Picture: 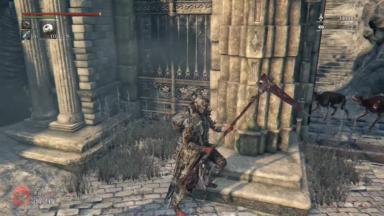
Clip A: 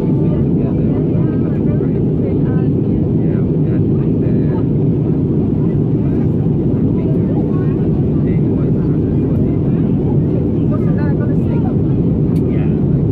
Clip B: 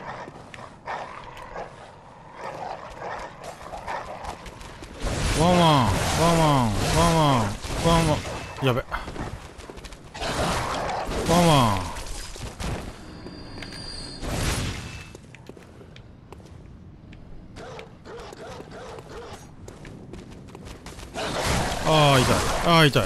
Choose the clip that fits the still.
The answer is B